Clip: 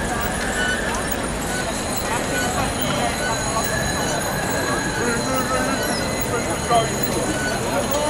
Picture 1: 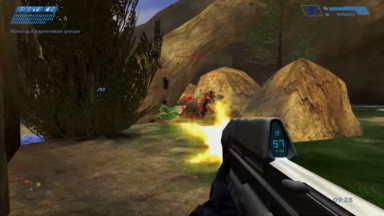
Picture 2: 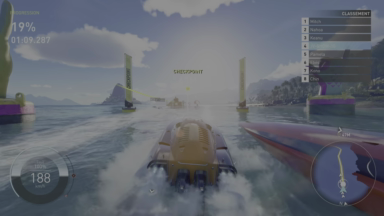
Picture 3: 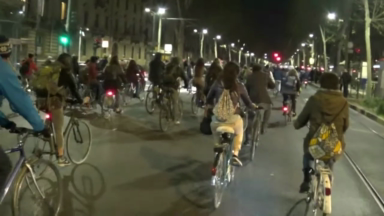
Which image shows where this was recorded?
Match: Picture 3